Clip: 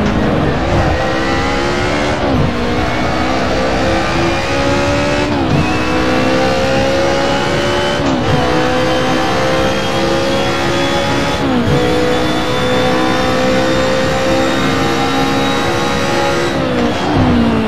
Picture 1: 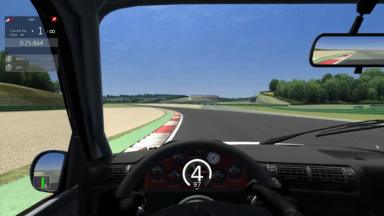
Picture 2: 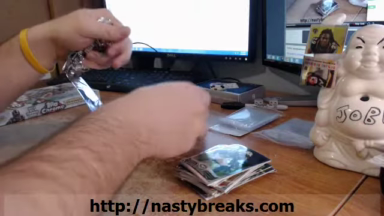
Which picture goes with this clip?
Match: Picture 1